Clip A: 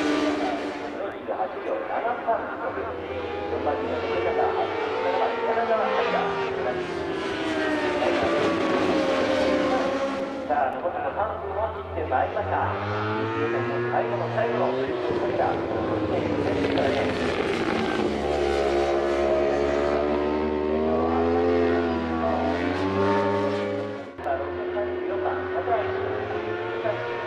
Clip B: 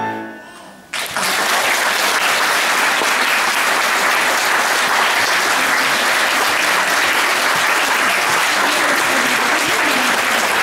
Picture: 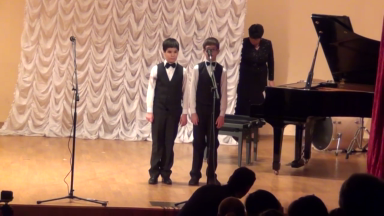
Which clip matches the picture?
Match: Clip B